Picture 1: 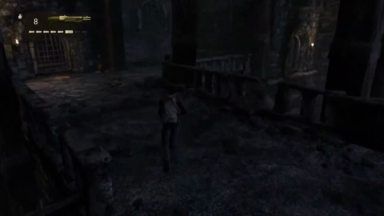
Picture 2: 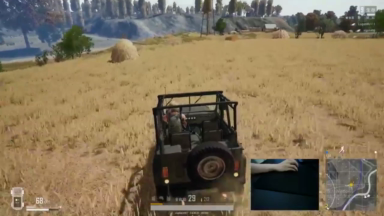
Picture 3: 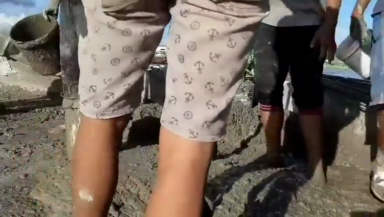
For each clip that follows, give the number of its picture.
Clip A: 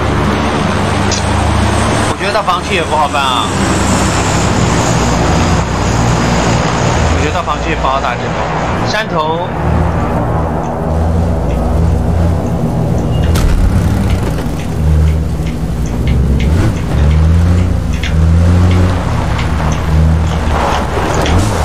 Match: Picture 2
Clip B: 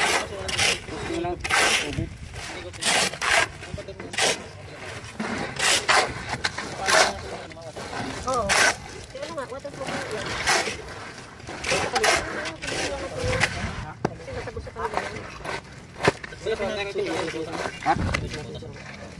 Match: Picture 3